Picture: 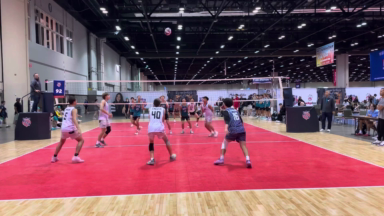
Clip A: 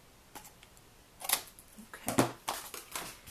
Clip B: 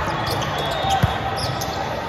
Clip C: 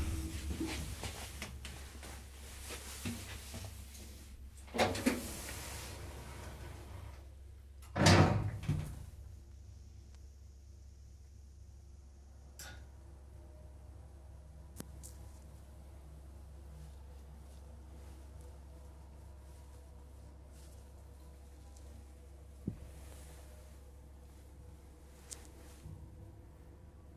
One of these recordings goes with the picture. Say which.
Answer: B